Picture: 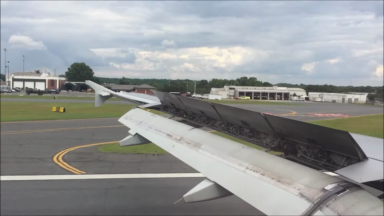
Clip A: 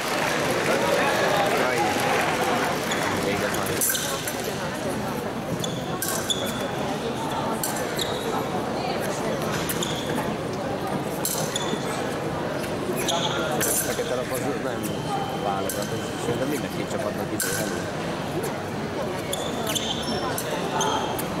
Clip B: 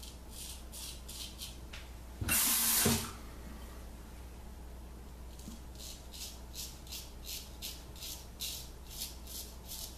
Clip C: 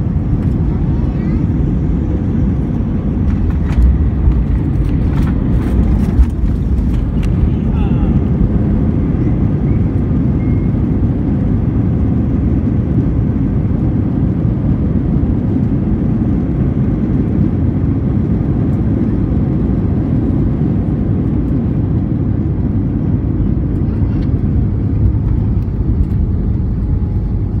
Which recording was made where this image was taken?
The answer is C